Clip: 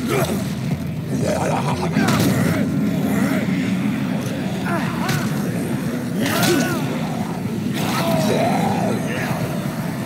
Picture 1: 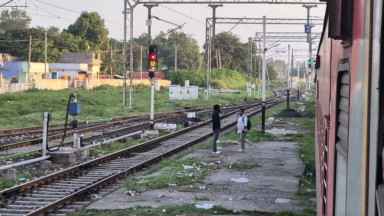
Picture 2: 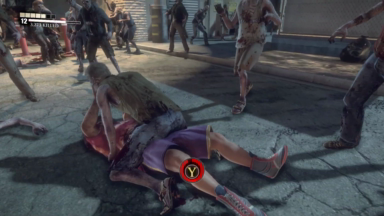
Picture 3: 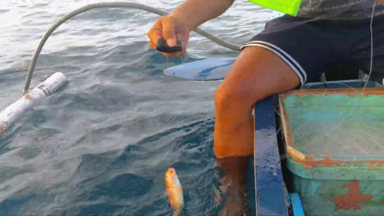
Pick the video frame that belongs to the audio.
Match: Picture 2